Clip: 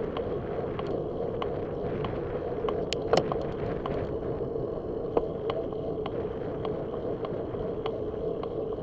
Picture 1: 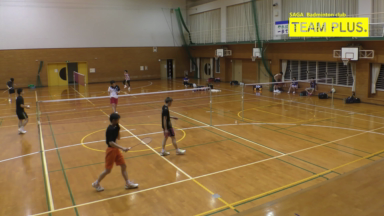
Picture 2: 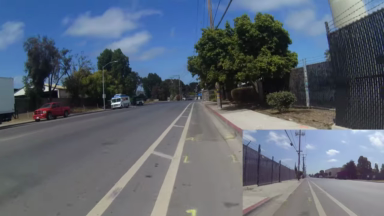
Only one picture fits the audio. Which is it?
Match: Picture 2